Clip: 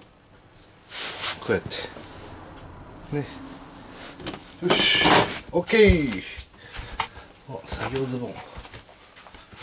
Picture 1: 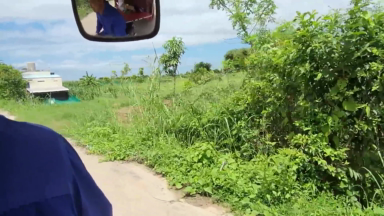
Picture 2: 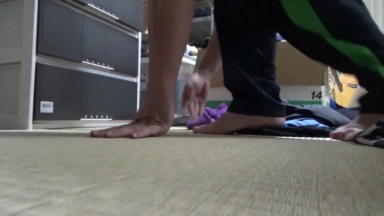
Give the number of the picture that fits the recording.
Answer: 2